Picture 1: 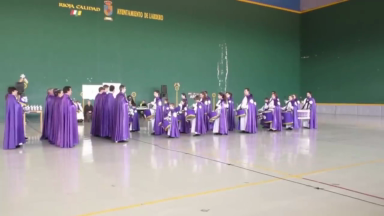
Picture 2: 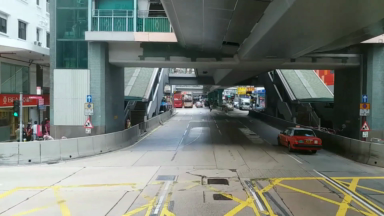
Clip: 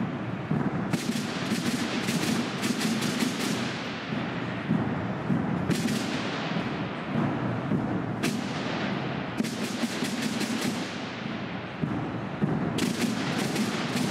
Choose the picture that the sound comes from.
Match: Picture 1